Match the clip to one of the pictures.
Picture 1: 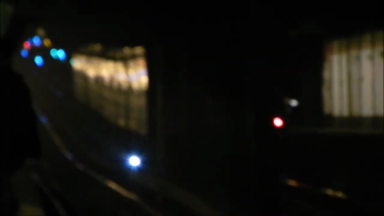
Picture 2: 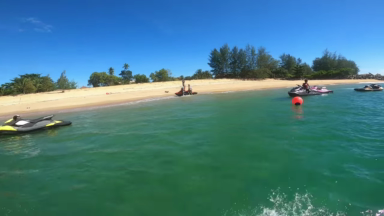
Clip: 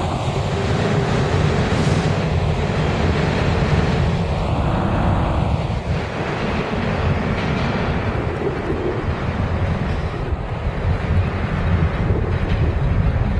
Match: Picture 1